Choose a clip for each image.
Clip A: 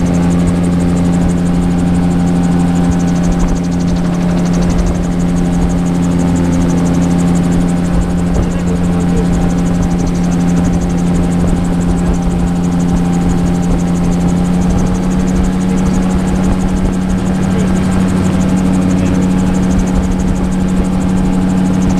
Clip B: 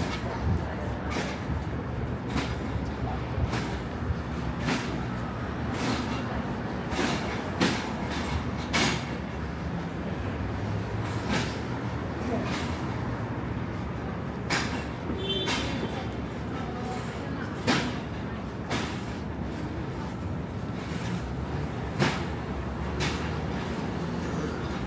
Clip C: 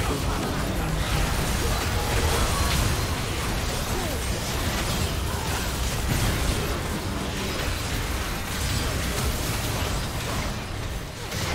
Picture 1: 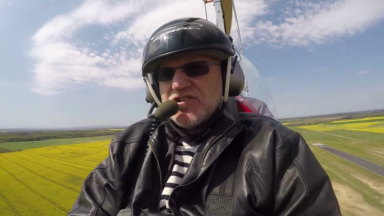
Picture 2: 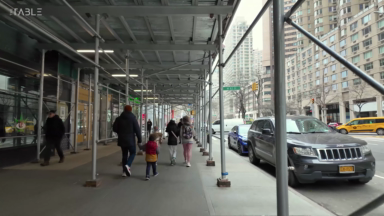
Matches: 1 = A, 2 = B